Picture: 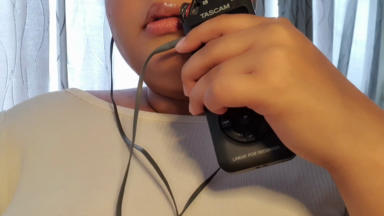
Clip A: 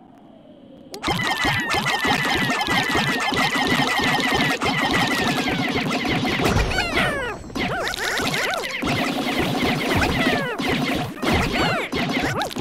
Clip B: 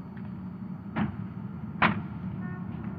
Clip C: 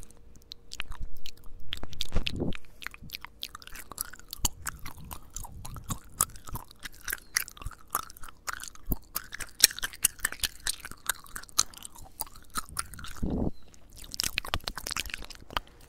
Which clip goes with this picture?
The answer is C